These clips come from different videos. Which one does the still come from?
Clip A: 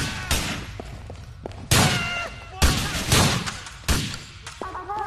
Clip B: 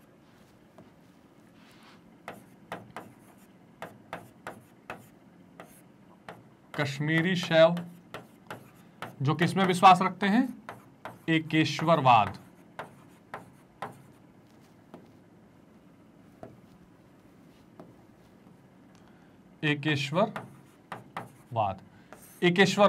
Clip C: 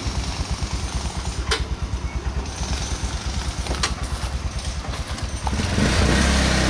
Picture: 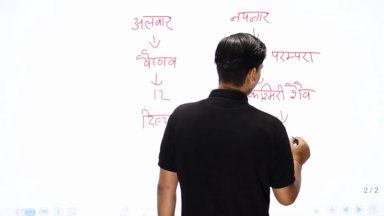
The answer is B